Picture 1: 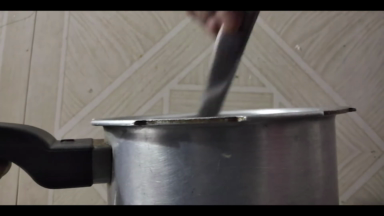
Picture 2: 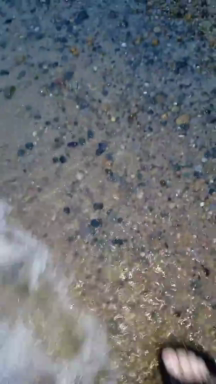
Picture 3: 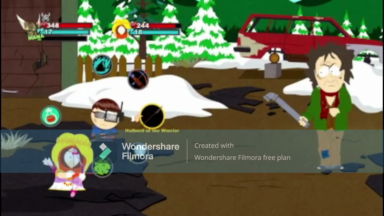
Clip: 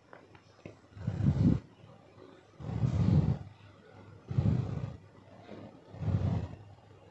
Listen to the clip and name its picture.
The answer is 1